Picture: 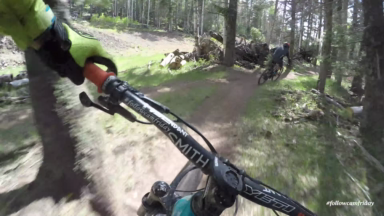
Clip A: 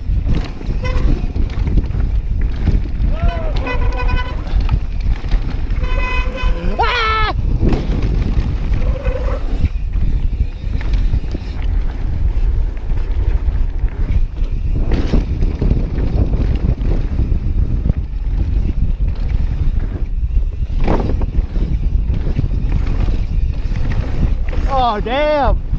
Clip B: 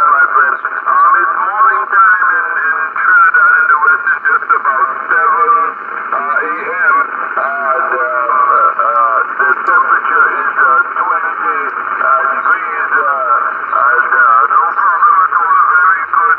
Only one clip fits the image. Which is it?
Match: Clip A